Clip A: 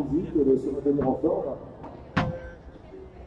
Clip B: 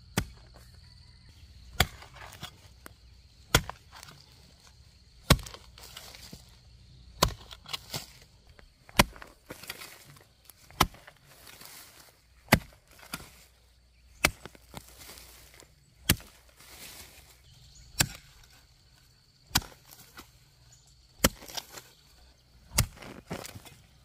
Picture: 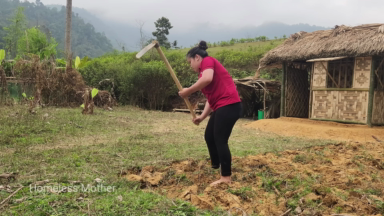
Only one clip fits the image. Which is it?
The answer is B